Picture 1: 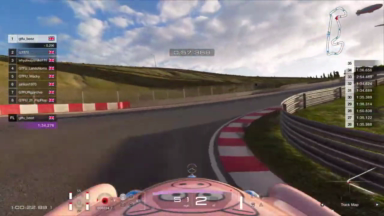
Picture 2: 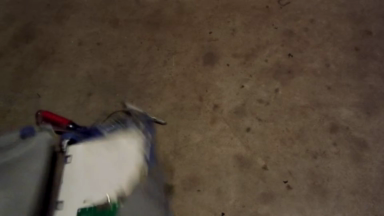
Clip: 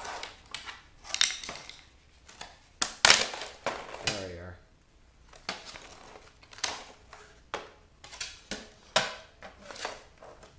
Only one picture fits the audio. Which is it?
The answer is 2